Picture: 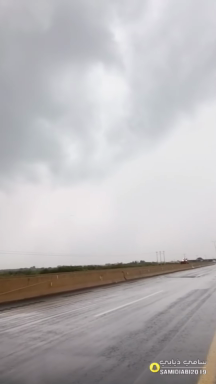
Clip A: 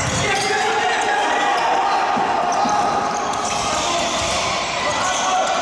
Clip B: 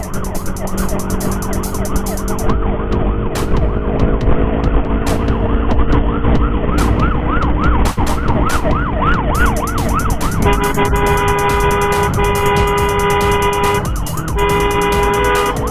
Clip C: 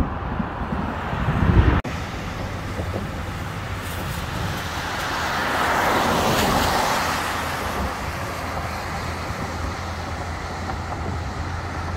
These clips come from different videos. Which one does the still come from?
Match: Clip C